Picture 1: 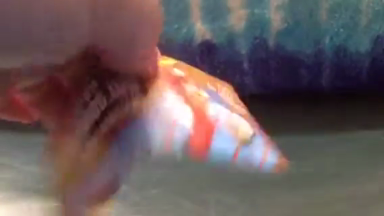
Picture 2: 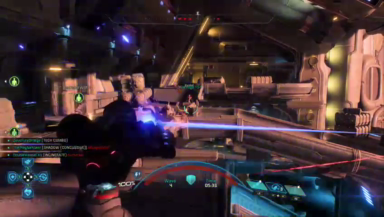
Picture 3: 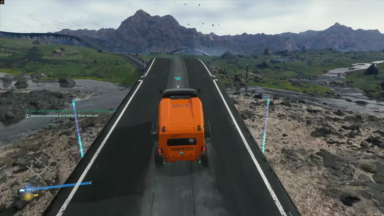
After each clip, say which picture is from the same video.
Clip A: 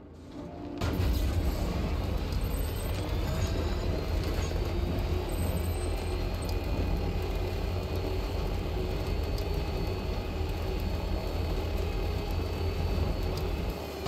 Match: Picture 3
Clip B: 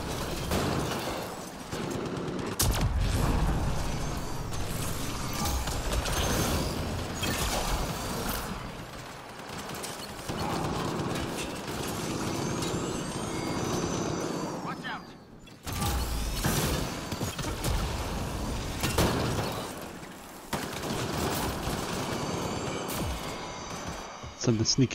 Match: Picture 2